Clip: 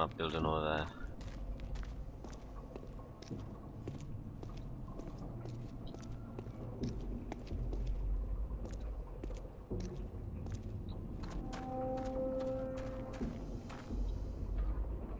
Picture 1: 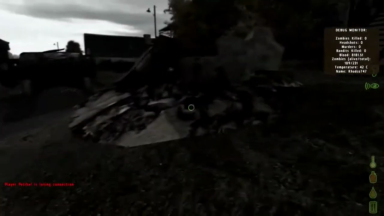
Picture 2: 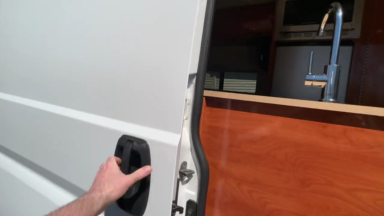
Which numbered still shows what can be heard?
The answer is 1